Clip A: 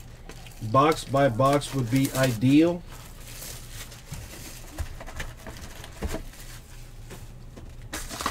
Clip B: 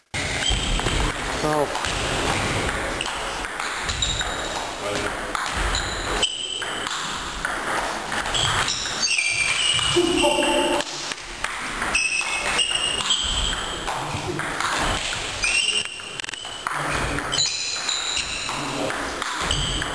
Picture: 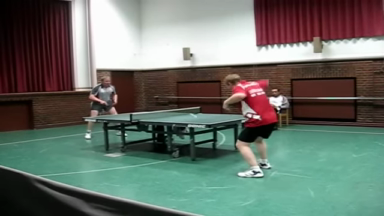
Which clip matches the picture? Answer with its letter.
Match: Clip B